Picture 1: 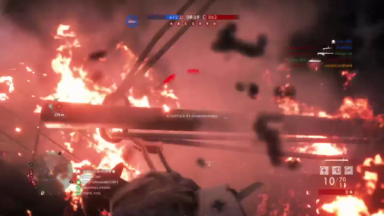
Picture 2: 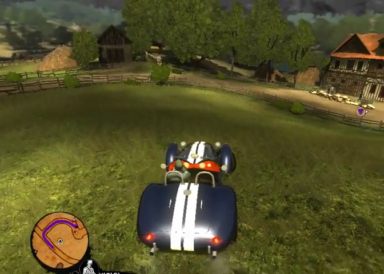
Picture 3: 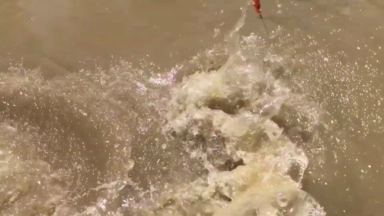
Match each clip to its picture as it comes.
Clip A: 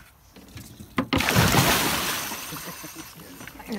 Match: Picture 3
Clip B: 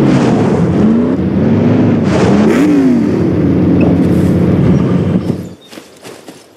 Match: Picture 2